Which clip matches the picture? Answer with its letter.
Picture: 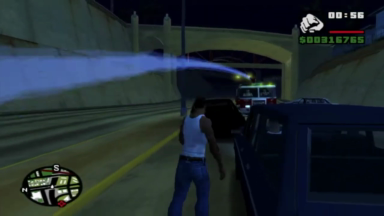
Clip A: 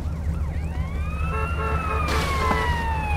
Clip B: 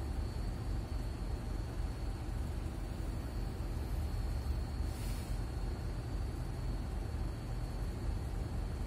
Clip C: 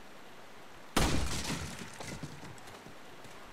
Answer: A